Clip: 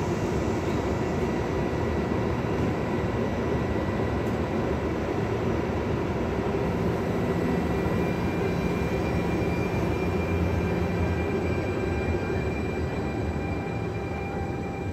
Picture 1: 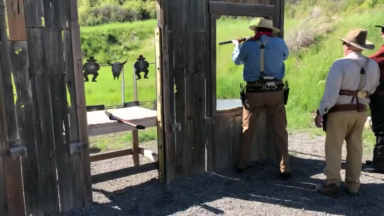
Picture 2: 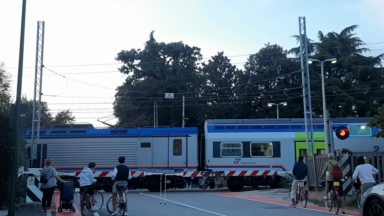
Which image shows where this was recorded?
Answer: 2